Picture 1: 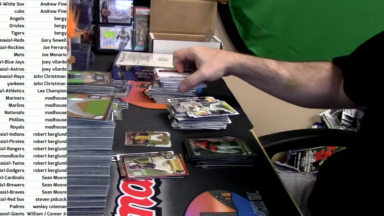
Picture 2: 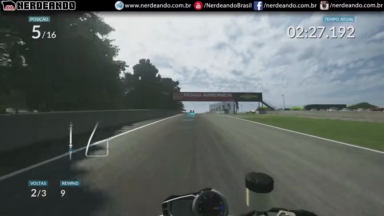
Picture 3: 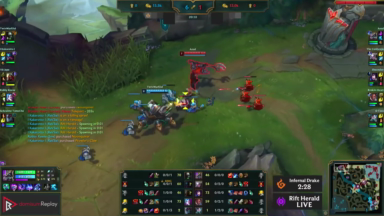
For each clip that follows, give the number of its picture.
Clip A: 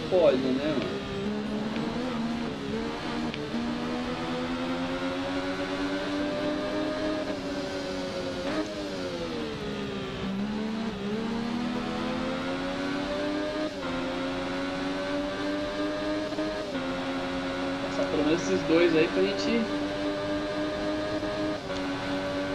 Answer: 2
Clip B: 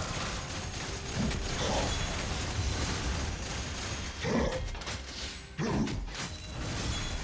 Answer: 3